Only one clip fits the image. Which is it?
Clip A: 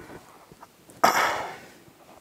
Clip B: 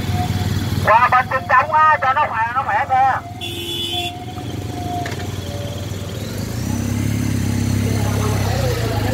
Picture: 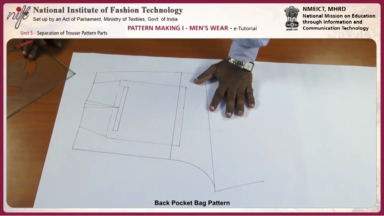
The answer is A